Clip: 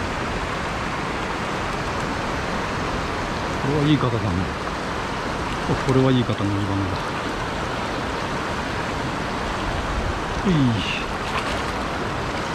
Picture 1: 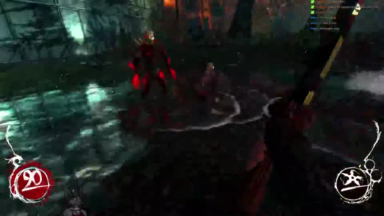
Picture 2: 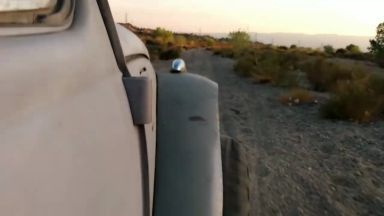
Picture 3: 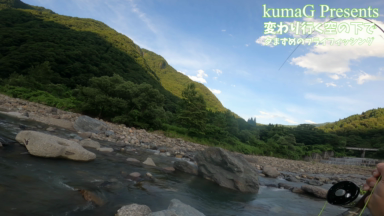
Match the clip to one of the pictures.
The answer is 3